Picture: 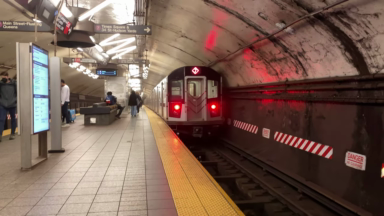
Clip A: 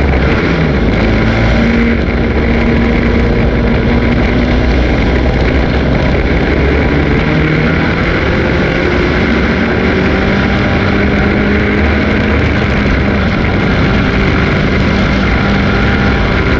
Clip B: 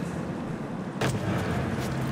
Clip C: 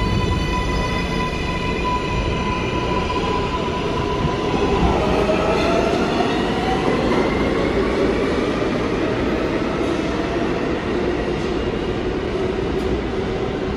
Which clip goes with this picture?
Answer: C